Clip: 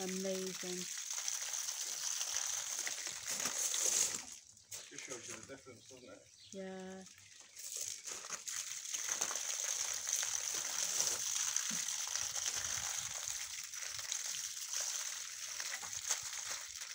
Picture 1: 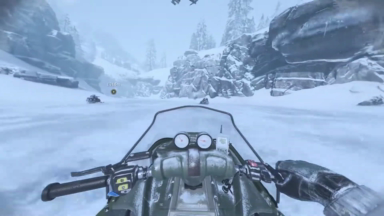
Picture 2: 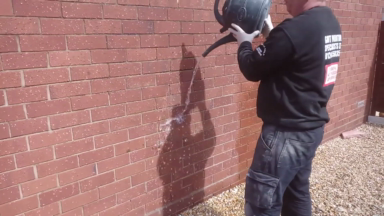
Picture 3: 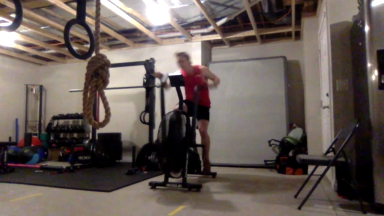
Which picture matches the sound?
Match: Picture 2